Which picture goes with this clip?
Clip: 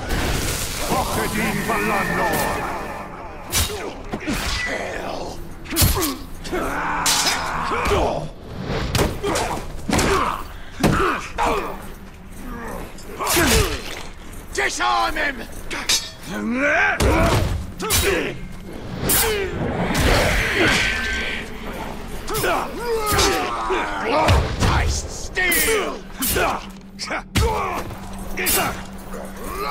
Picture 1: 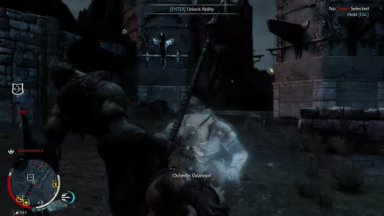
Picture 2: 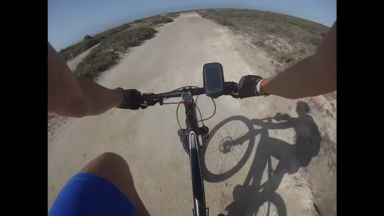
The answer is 1